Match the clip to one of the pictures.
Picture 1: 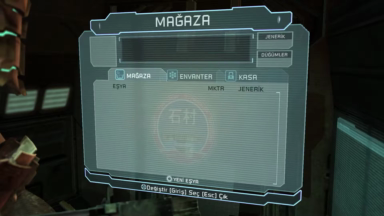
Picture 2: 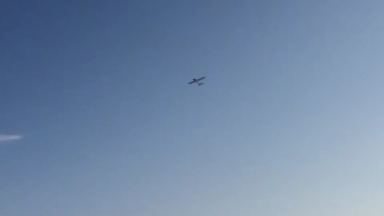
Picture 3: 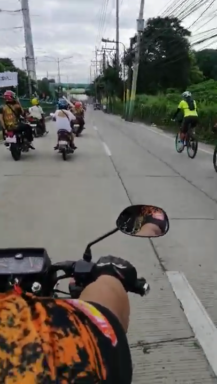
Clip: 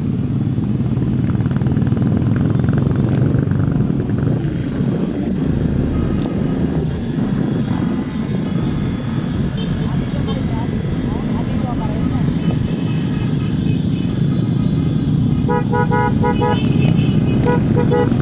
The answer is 3